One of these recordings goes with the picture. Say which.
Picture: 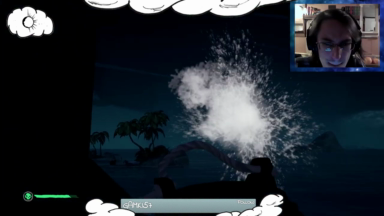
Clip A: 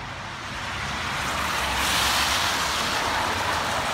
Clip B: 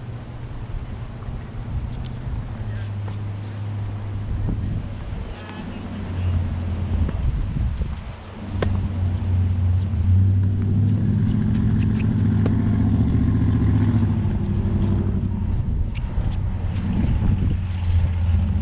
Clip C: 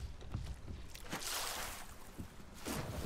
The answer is C